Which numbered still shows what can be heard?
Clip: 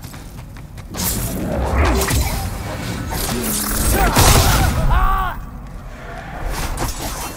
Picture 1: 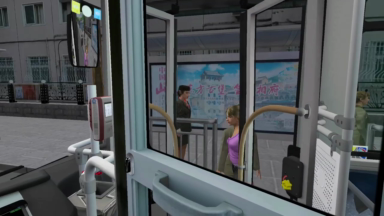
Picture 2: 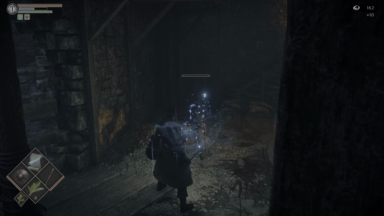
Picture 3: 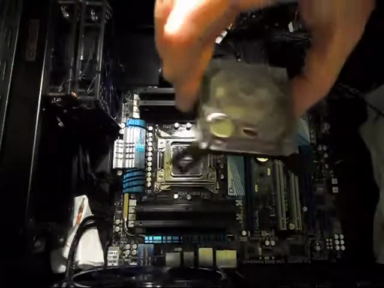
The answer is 2